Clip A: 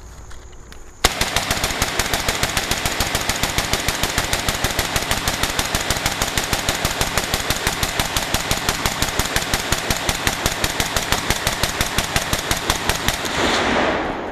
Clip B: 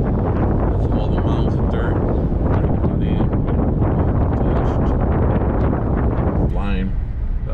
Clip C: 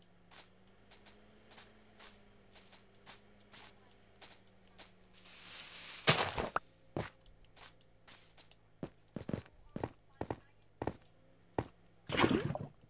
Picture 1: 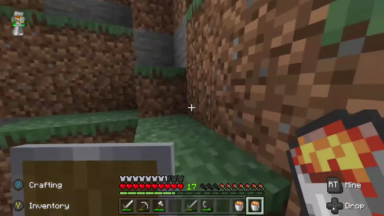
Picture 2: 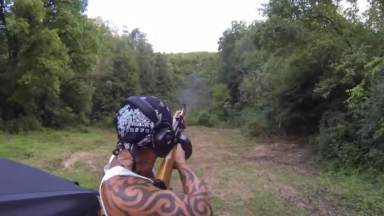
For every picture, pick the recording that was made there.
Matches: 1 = C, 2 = A